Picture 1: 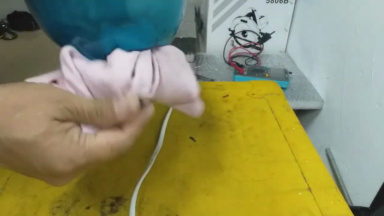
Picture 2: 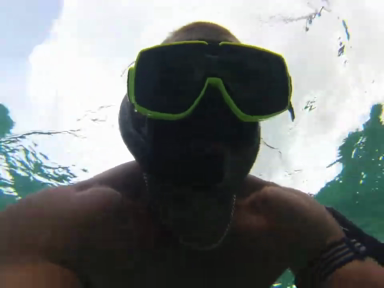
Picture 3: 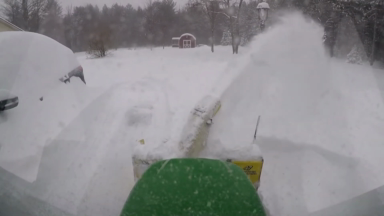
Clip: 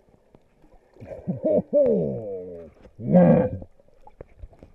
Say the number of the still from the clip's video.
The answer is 2